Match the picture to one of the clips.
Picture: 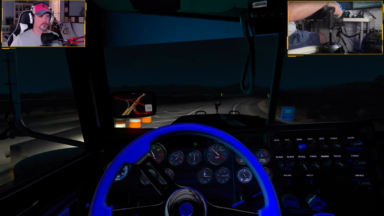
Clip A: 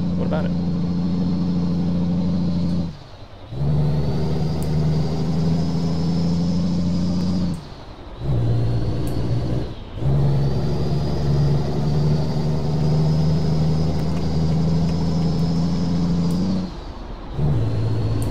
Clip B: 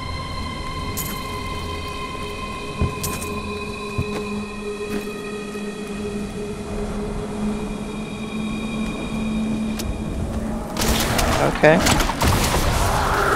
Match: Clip A